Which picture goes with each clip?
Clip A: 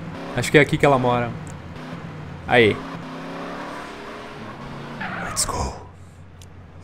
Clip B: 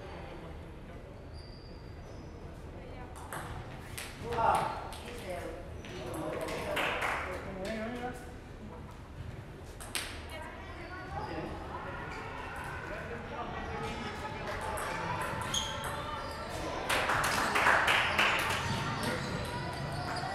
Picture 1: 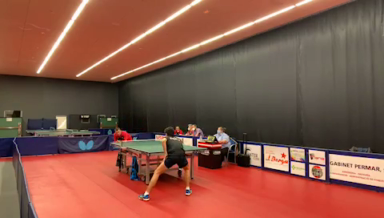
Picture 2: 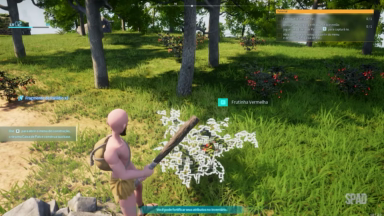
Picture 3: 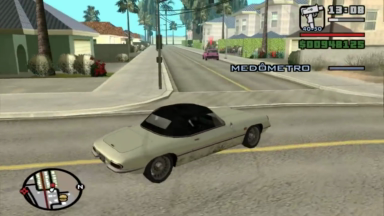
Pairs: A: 3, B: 1